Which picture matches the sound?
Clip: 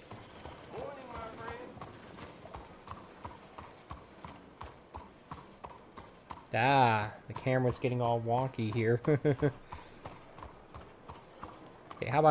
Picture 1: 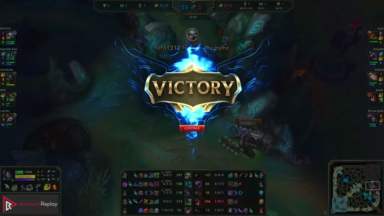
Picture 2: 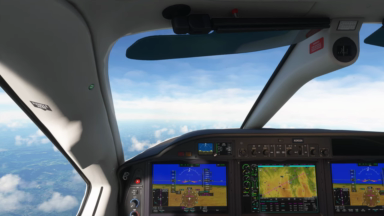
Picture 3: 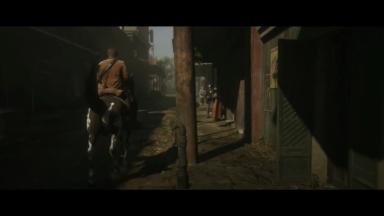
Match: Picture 3